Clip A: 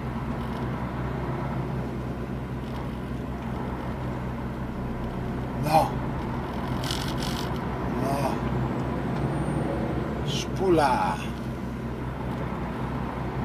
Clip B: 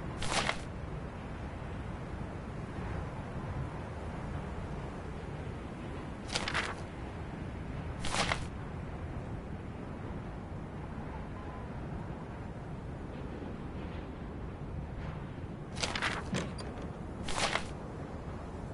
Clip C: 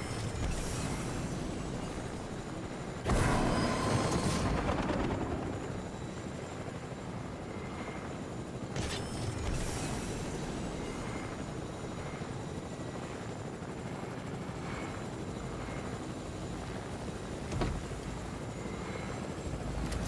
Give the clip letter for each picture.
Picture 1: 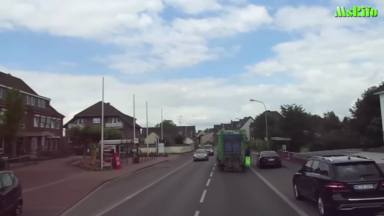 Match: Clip A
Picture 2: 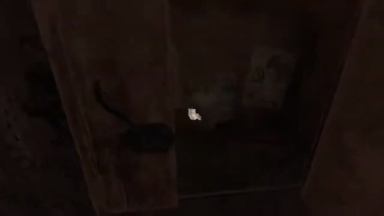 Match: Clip B